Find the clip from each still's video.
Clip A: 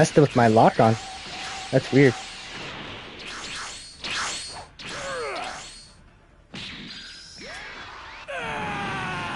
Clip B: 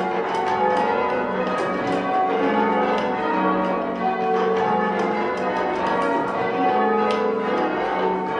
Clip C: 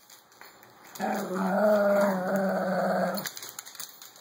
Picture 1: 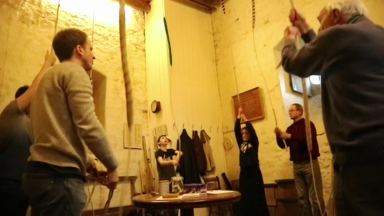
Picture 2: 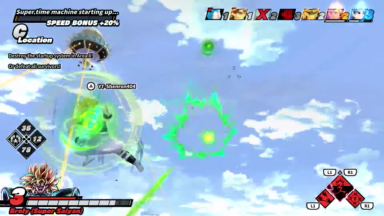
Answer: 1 B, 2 A